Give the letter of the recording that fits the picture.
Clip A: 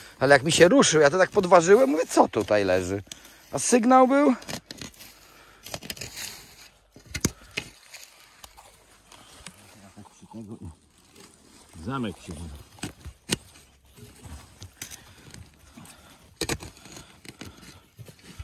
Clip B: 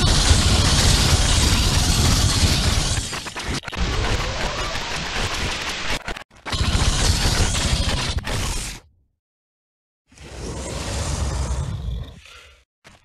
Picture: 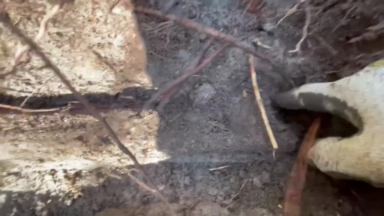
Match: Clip A